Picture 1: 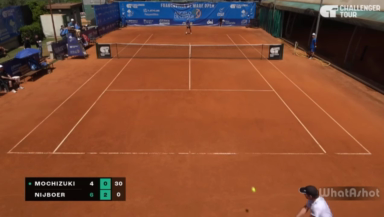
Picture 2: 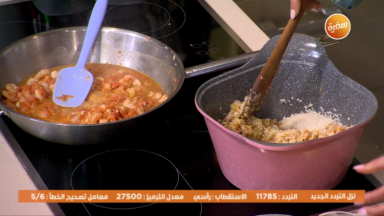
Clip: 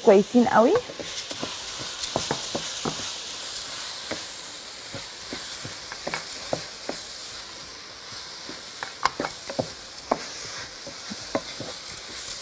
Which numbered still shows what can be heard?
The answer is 2